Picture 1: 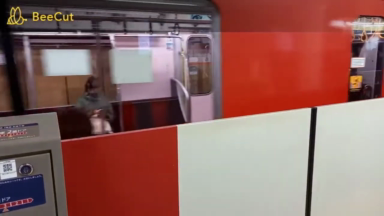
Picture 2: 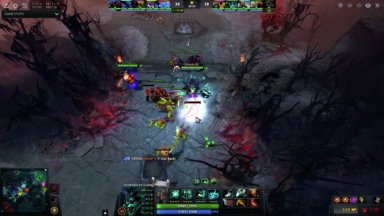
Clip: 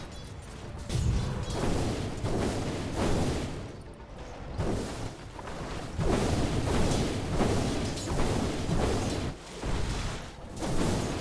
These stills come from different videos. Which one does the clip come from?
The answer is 2